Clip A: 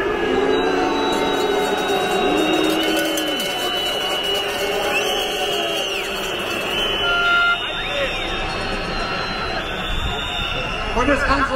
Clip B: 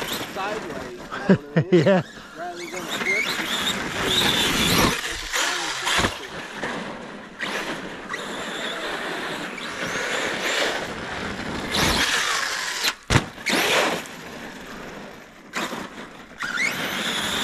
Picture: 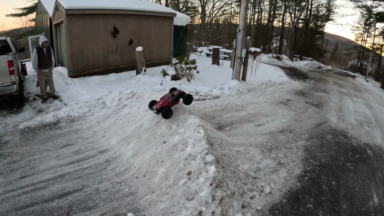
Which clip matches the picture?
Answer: B